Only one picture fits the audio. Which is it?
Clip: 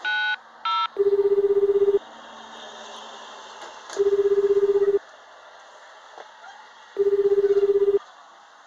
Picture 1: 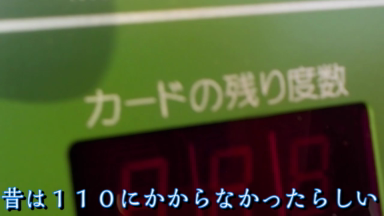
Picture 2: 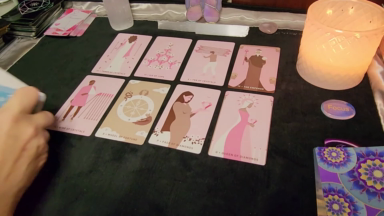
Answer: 1